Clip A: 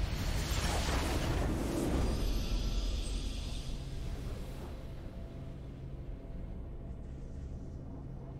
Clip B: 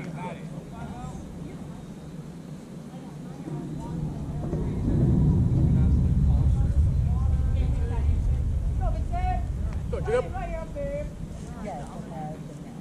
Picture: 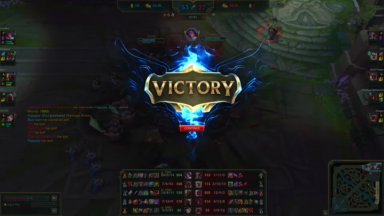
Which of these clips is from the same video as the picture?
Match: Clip A